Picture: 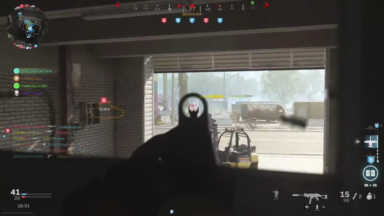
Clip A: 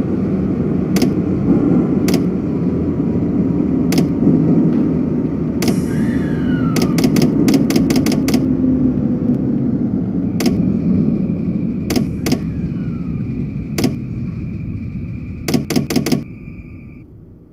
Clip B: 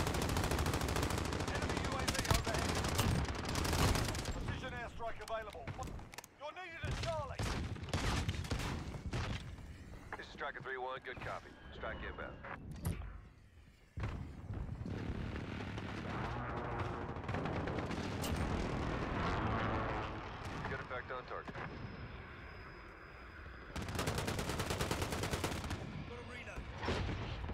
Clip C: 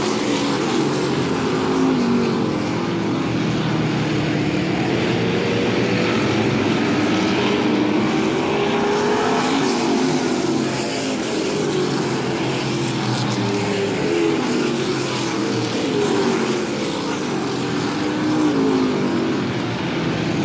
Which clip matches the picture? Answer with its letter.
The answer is B